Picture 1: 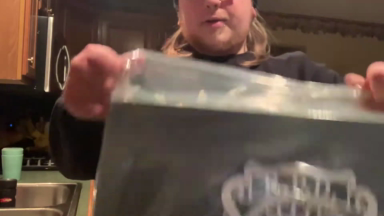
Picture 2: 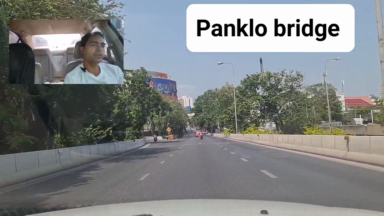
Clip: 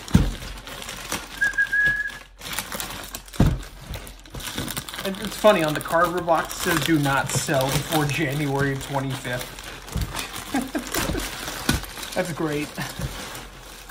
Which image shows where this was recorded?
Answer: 1